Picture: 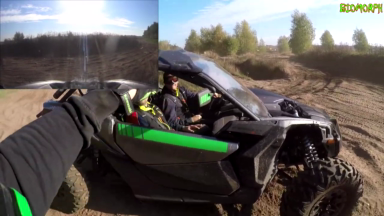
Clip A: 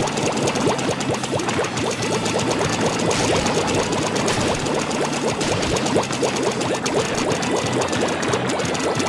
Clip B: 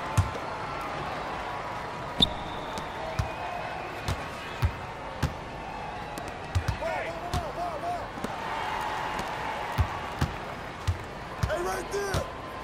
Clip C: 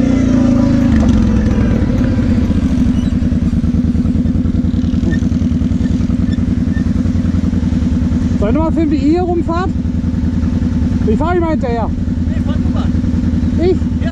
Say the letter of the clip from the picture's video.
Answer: C